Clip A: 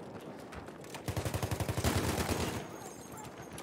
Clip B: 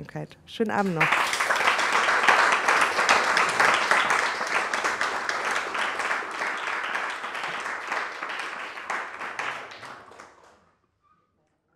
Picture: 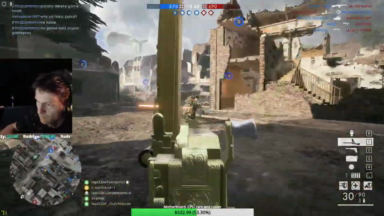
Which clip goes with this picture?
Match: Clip A